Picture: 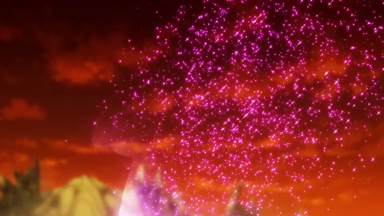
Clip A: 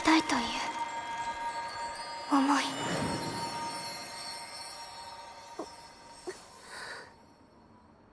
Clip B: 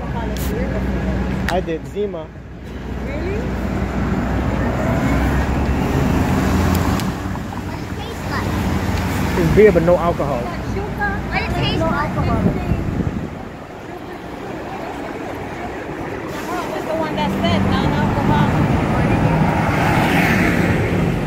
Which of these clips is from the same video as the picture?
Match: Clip A